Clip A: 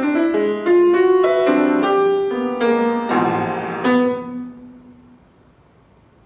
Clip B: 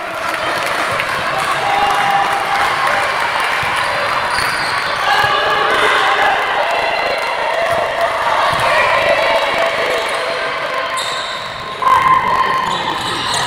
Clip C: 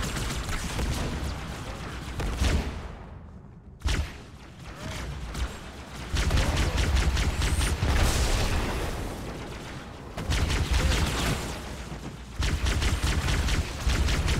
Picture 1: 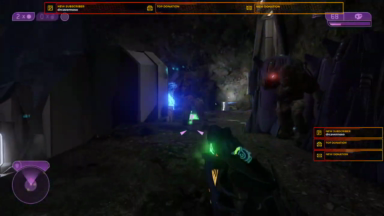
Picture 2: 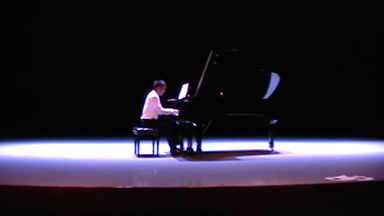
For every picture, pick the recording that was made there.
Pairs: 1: C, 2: A